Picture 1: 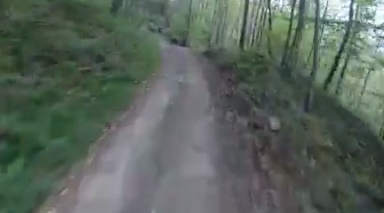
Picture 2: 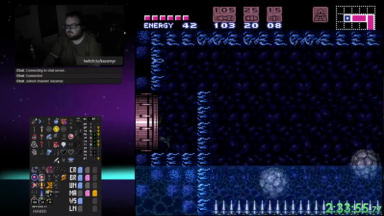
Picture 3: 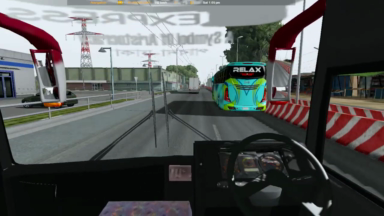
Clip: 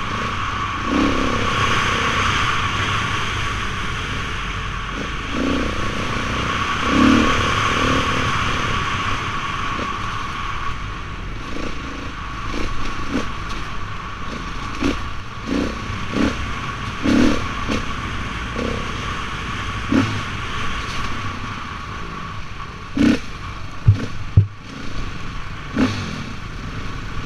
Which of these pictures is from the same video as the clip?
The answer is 1